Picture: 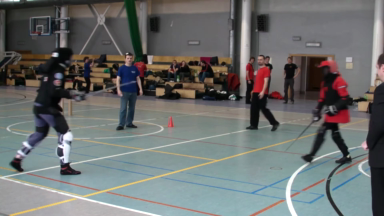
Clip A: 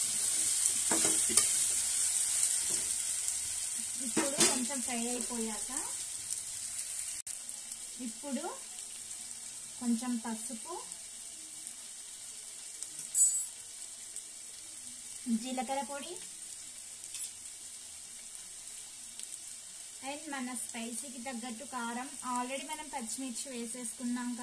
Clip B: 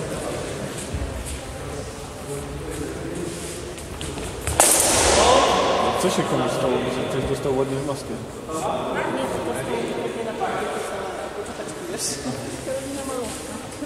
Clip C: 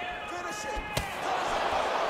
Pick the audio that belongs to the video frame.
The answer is B